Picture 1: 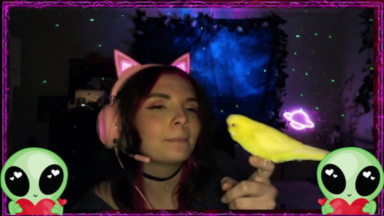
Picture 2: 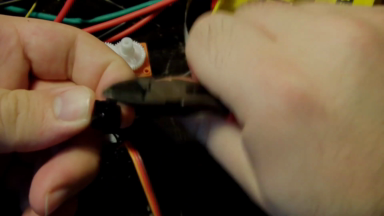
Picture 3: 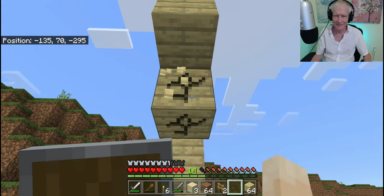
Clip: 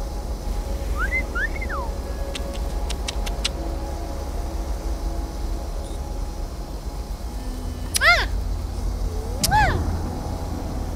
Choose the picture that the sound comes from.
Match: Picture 1